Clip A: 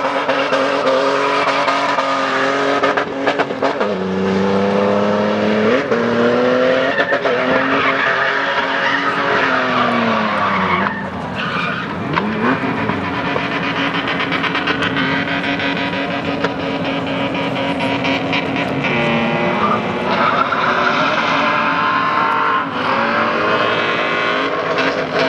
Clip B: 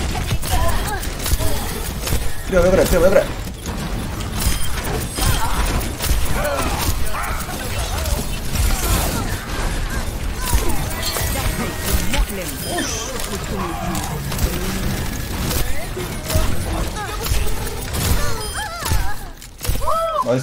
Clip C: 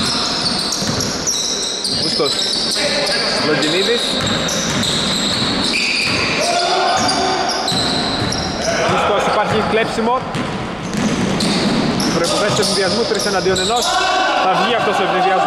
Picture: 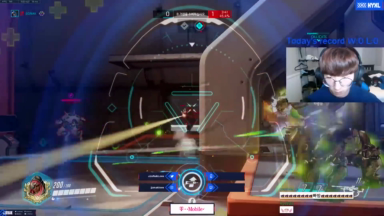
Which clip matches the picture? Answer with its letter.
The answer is B